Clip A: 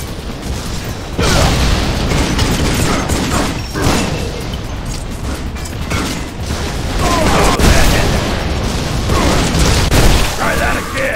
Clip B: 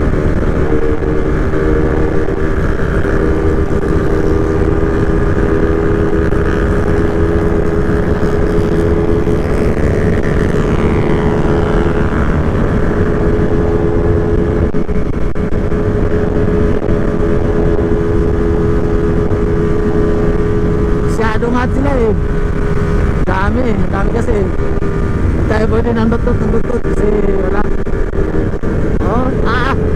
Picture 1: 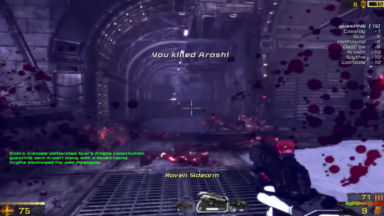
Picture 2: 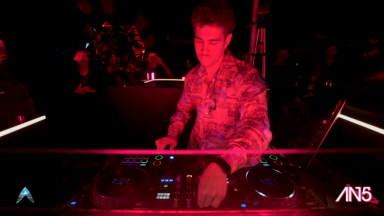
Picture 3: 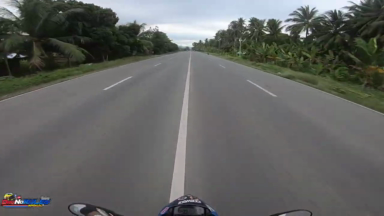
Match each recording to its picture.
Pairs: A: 1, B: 3